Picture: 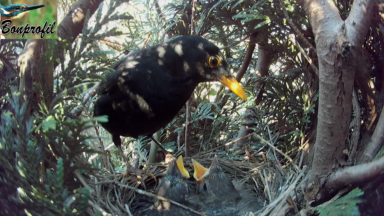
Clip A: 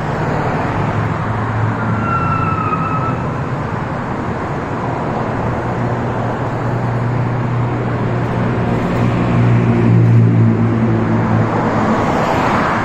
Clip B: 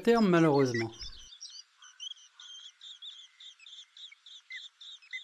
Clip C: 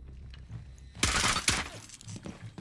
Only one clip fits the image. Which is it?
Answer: B